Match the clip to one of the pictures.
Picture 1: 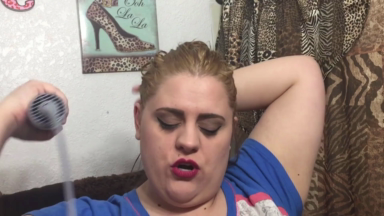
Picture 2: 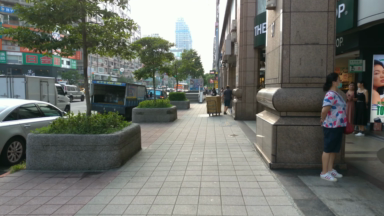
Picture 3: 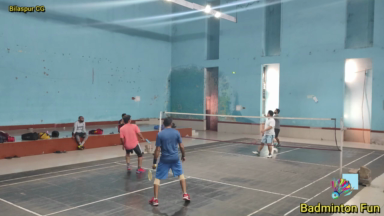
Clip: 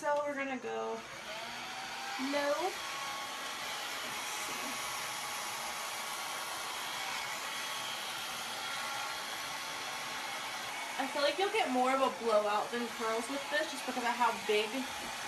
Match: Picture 1